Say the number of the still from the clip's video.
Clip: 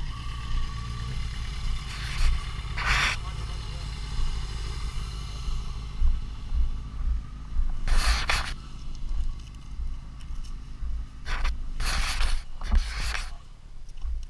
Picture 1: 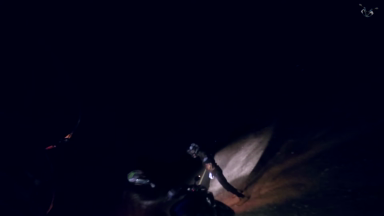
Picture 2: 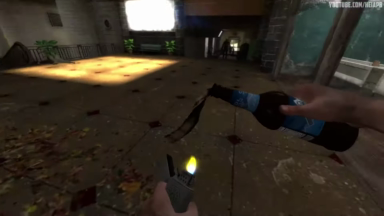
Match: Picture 1